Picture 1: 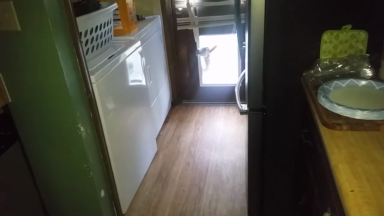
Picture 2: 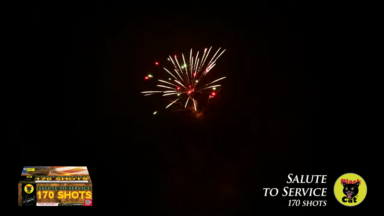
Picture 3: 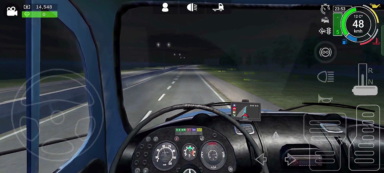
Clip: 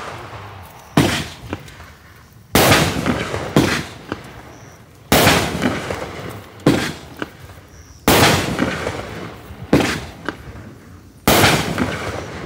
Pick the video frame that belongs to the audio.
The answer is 2